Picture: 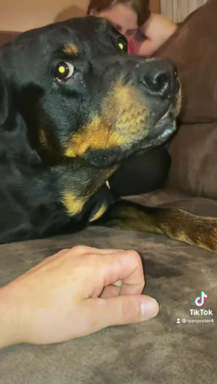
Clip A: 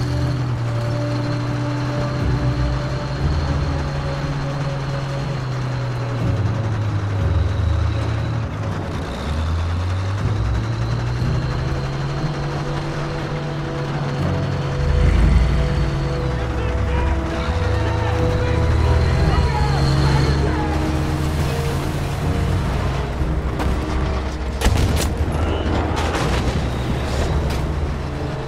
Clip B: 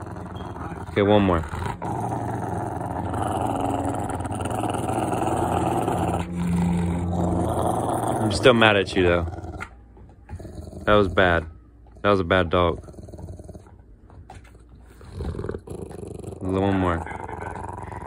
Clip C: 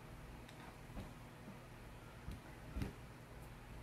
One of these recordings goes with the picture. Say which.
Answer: B